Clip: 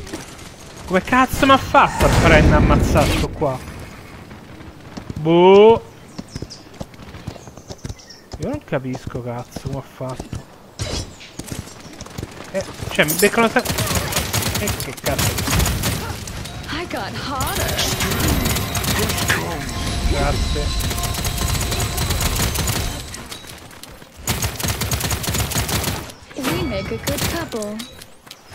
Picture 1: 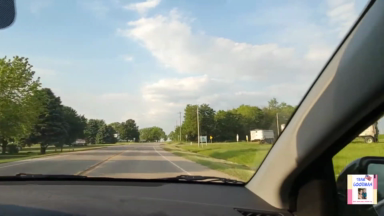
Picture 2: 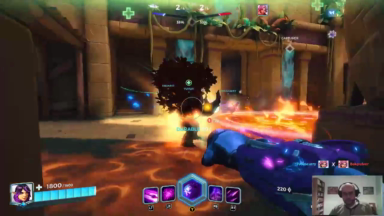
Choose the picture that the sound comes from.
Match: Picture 2